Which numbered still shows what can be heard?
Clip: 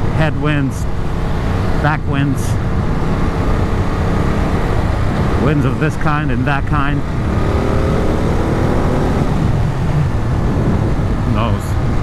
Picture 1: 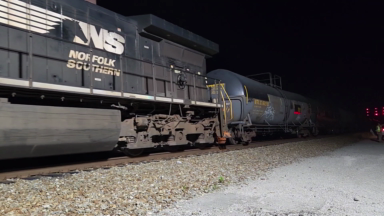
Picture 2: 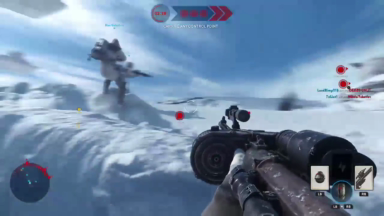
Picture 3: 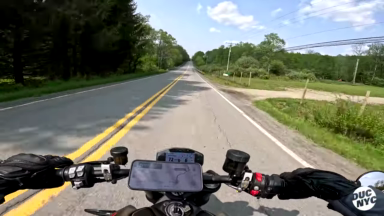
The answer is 3